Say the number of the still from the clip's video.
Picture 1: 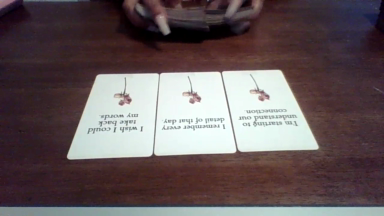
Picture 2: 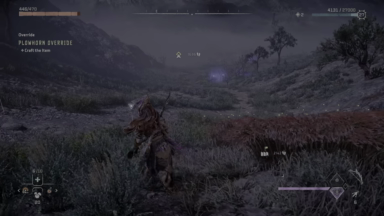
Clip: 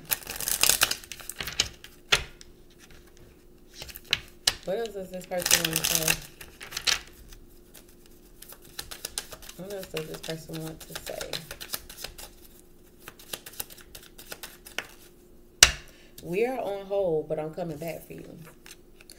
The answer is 1